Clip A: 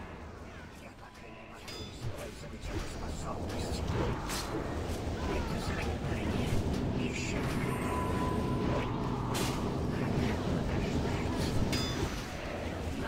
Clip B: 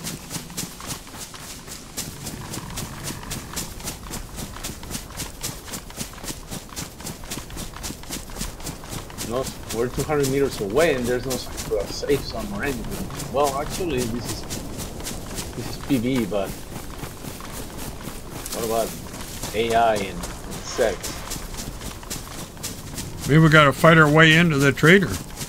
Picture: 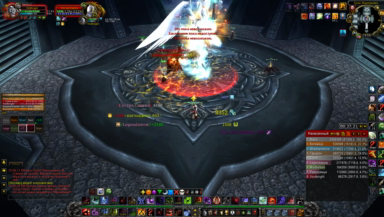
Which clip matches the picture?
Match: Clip A